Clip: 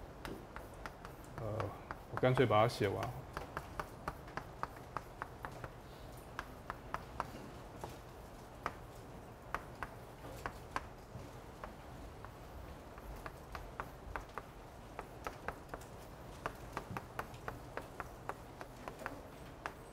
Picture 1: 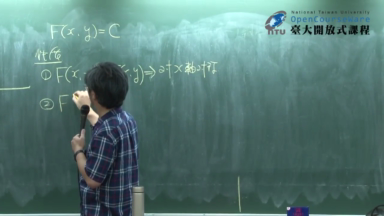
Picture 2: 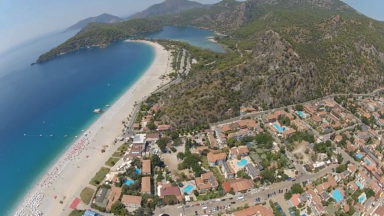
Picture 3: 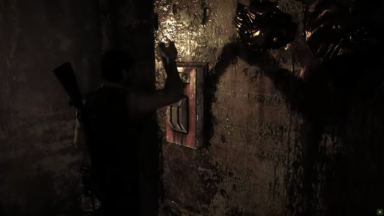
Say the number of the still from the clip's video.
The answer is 1